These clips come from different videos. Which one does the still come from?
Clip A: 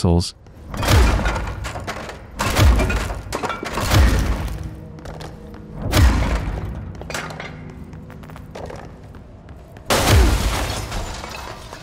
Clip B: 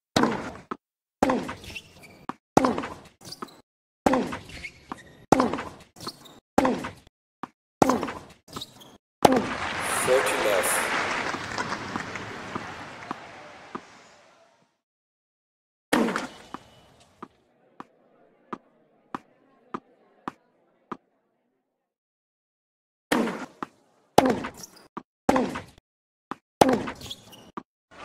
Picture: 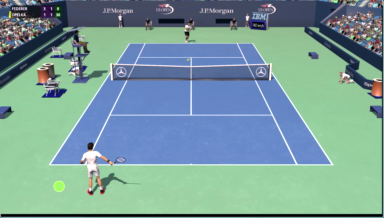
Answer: B